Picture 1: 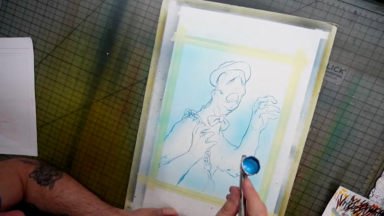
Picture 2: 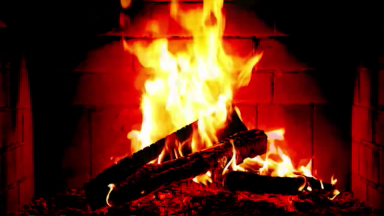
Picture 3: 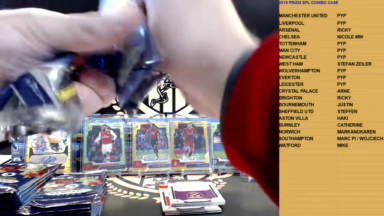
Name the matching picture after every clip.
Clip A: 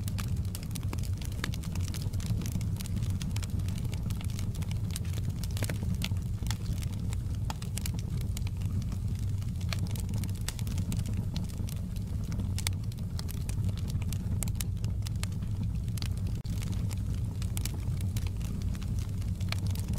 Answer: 2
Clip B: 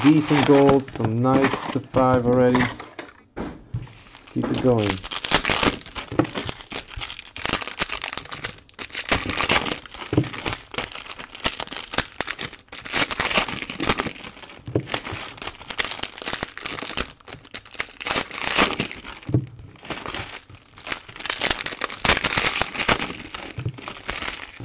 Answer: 3